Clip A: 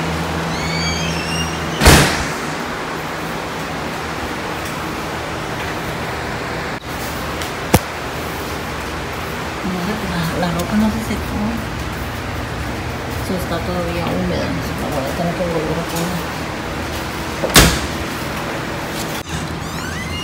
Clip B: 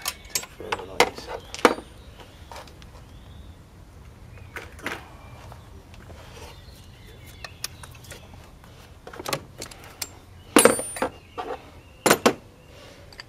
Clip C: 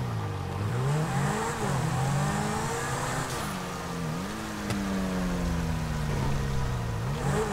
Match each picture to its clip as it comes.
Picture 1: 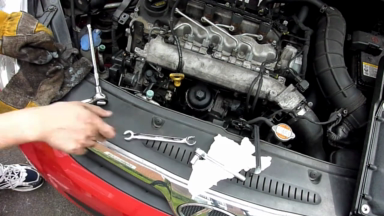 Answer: B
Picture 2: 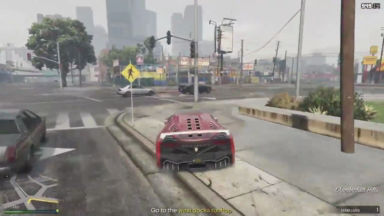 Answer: C